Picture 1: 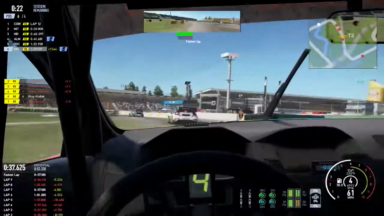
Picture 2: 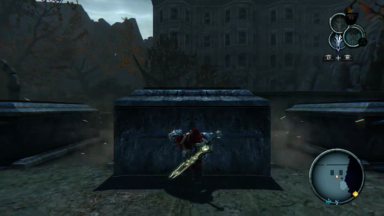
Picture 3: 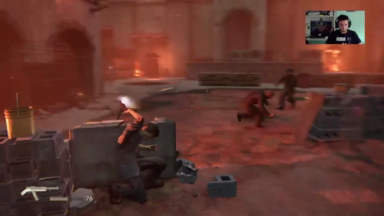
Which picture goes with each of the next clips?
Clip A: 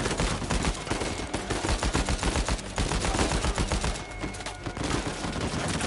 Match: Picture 3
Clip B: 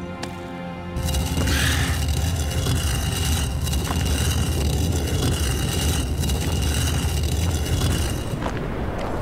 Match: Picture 2